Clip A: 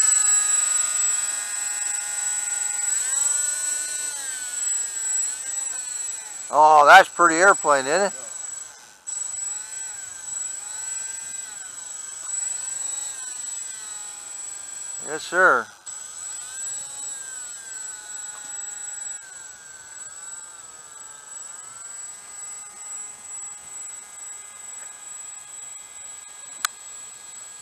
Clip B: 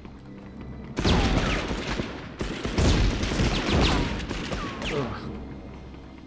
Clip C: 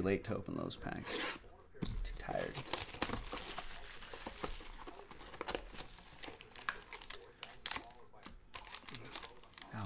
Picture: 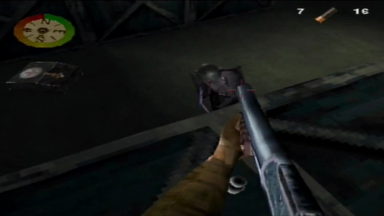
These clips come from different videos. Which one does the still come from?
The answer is B